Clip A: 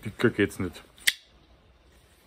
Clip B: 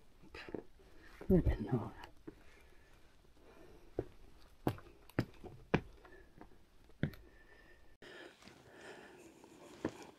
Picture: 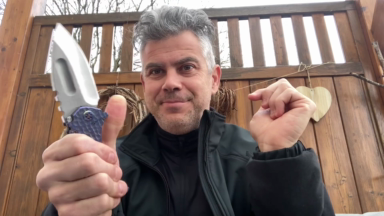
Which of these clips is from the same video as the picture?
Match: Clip A